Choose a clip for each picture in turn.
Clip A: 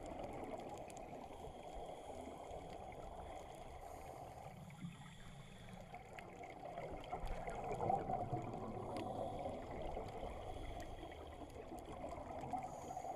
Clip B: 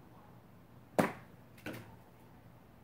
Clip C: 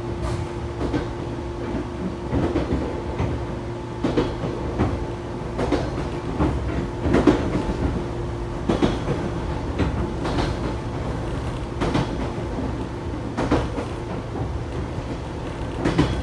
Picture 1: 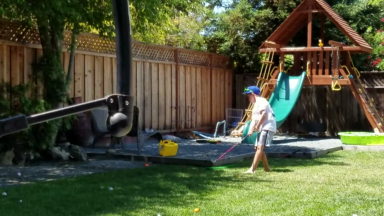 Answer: B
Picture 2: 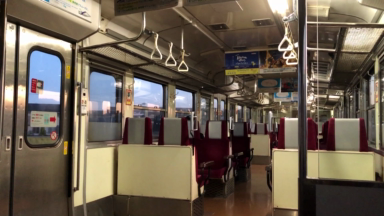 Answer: C